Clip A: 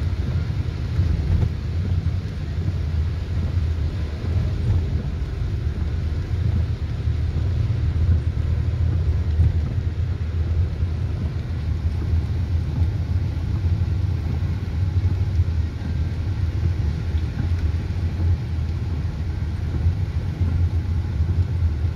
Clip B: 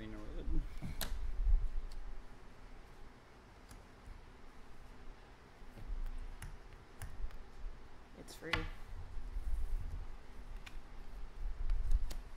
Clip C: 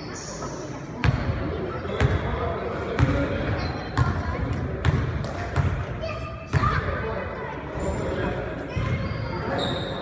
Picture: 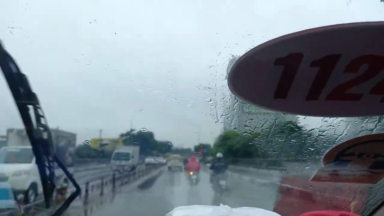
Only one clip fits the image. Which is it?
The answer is A